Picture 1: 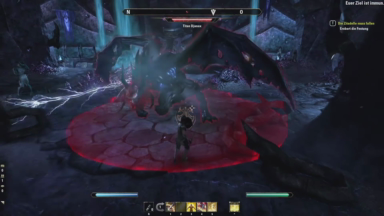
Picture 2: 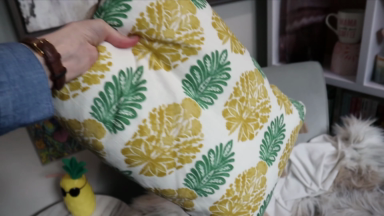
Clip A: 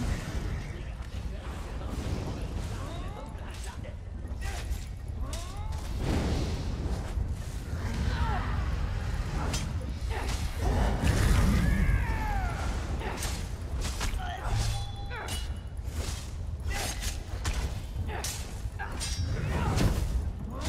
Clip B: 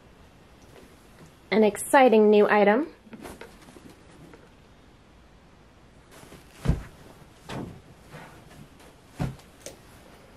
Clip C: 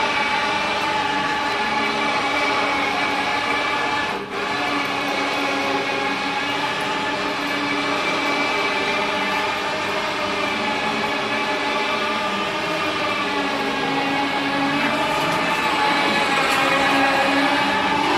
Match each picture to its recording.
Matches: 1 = A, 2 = B